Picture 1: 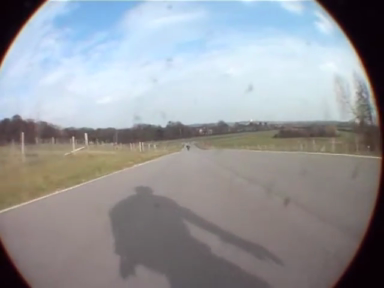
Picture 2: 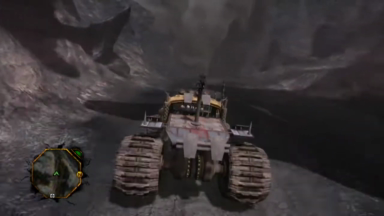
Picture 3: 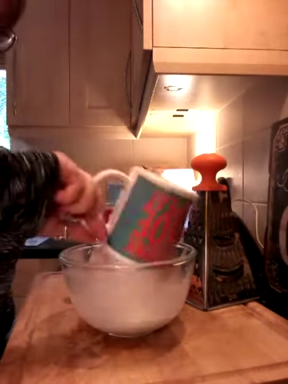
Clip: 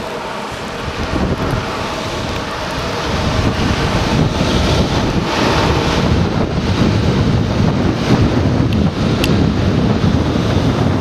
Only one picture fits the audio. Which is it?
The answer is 1